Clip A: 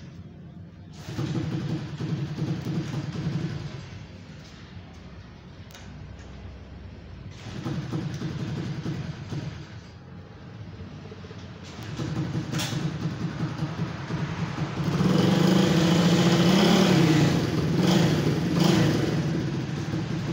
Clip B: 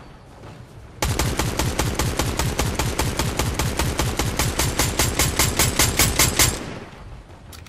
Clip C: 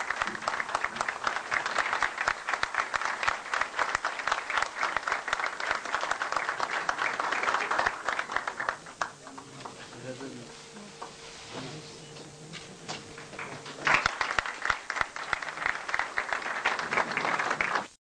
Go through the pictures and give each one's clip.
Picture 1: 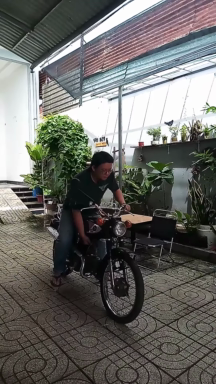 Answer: A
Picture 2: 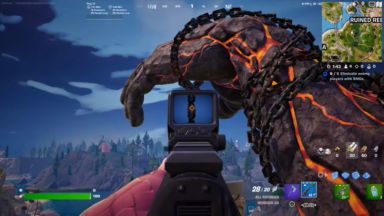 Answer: B